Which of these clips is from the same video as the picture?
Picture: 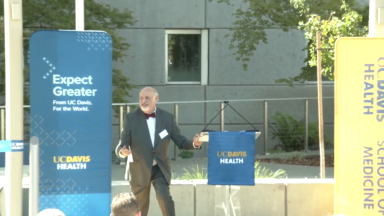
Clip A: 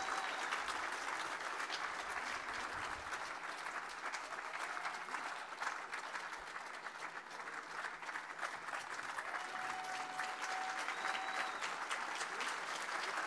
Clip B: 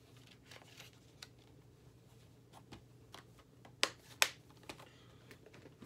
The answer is A